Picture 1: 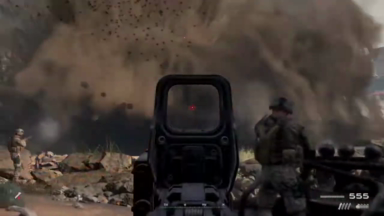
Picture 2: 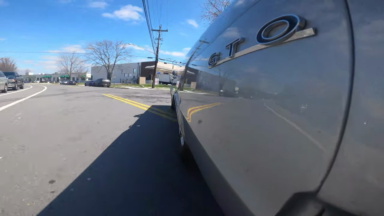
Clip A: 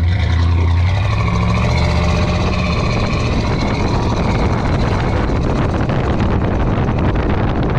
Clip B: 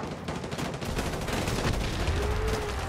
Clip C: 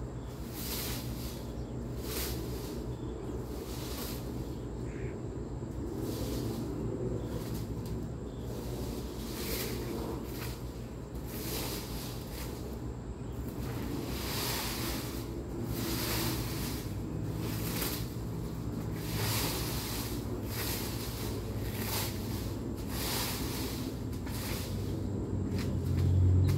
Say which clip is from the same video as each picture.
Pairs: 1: B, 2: A